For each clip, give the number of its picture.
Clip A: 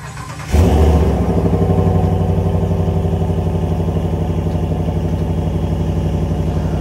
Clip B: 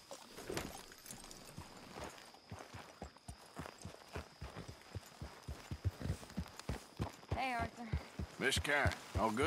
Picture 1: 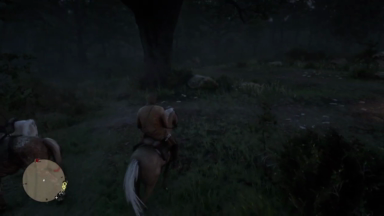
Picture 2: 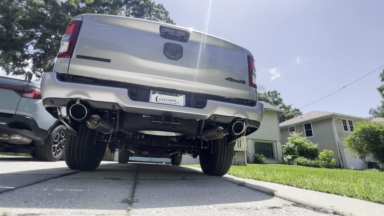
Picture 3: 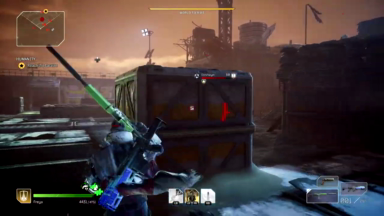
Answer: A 2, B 1